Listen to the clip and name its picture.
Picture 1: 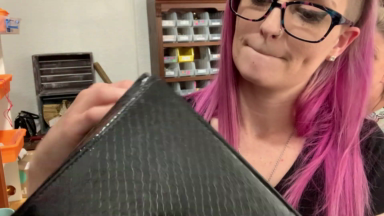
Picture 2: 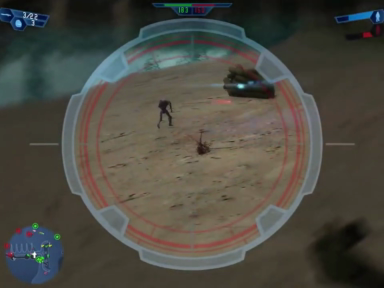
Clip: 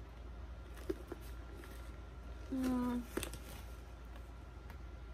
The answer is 1